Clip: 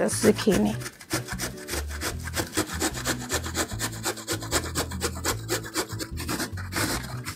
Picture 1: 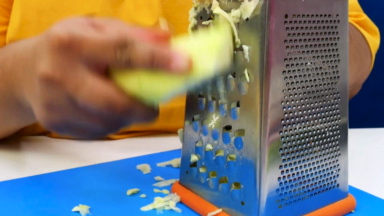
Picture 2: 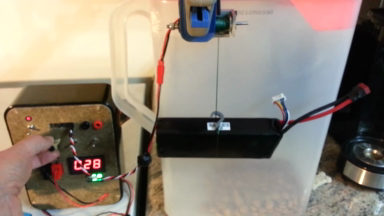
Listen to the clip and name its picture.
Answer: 1